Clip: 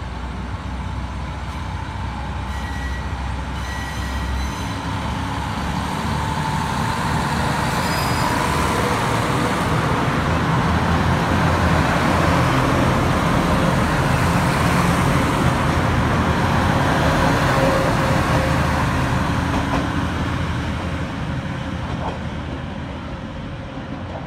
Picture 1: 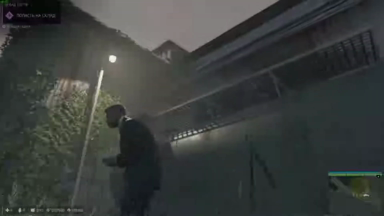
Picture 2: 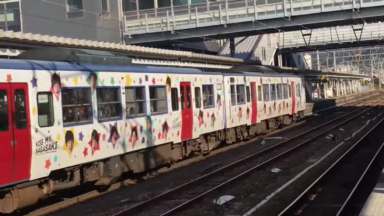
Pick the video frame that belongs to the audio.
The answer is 2